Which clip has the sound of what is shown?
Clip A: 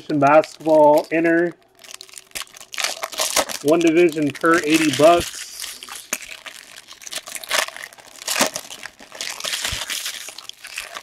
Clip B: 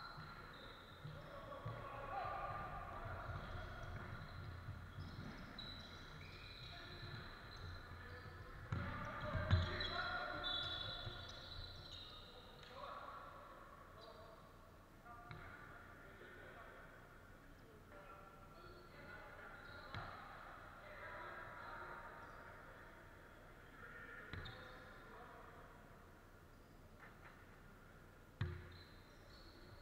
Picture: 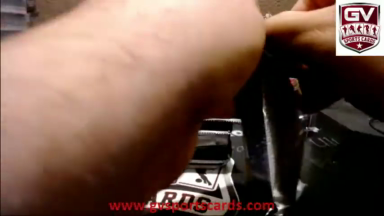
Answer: A